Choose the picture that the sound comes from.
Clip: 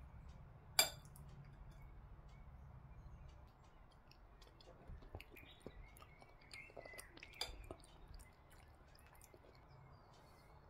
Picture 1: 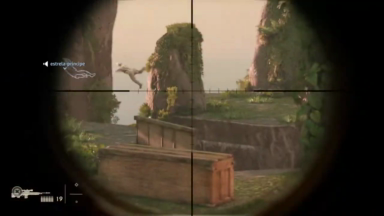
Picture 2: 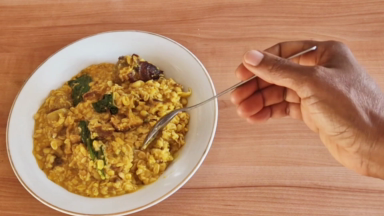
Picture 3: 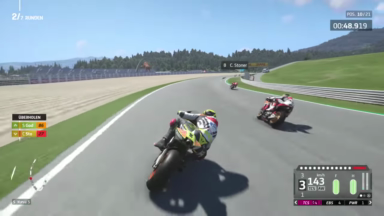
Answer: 2